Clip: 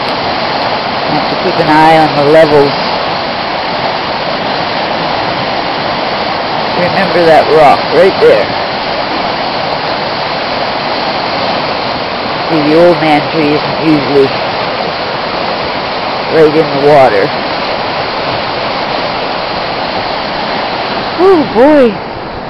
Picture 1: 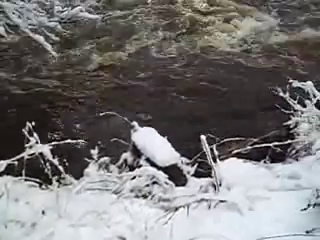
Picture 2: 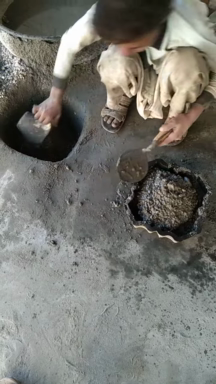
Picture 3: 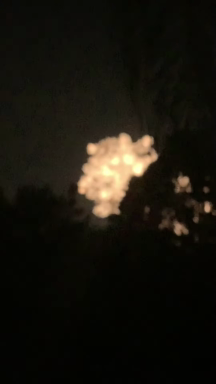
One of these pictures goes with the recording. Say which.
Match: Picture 1